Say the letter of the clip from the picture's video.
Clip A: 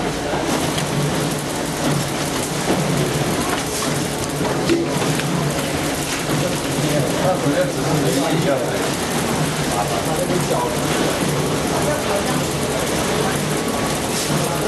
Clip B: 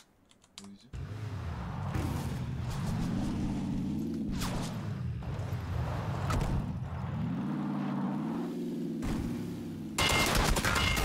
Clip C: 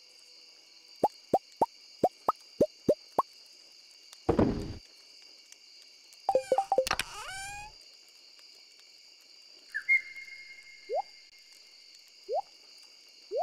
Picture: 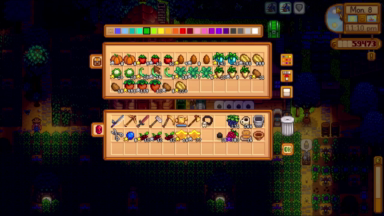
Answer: C